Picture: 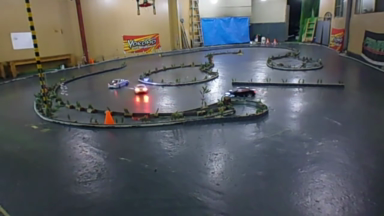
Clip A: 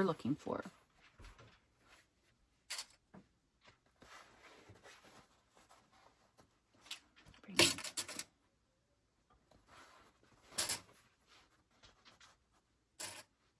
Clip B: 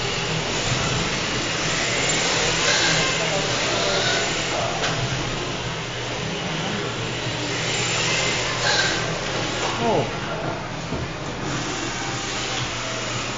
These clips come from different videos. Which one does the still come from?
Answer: B